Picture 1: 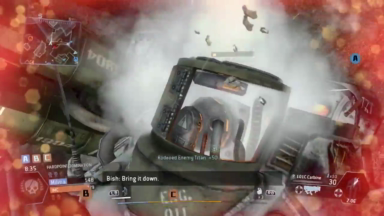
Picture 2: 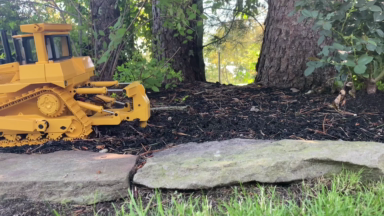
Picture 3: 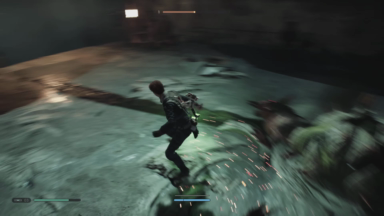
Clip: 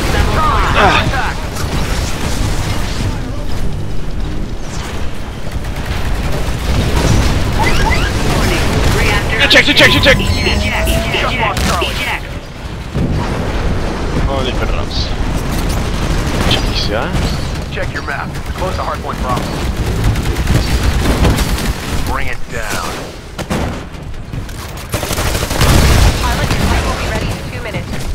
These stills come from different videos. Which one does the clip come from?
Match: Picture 1